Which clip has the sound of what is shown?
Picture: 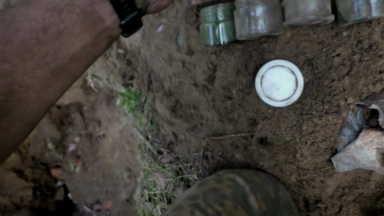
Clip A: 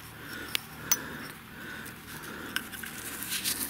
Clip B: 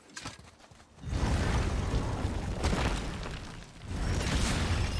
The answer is A